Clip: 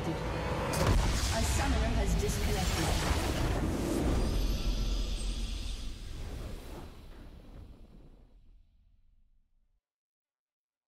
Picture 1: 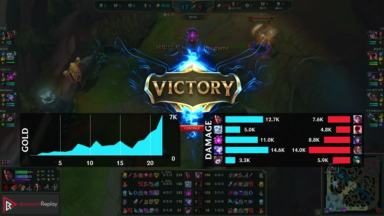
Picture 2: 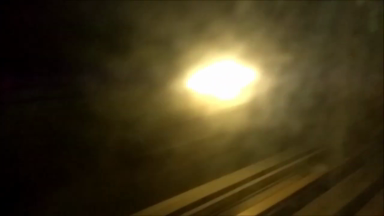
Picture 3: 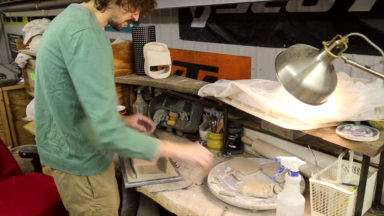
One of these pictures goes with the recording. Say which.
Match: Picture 1